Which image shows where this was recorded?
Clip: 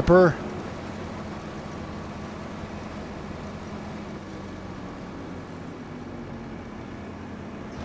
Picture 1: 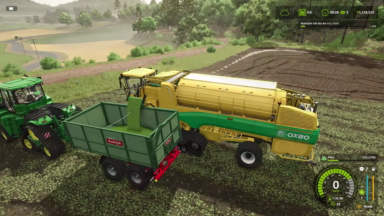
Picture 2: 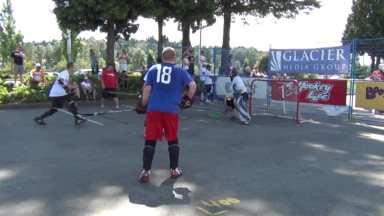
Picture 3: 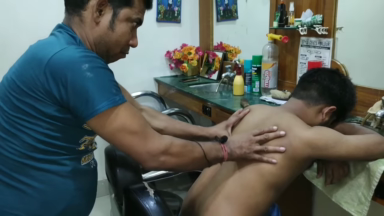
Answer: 1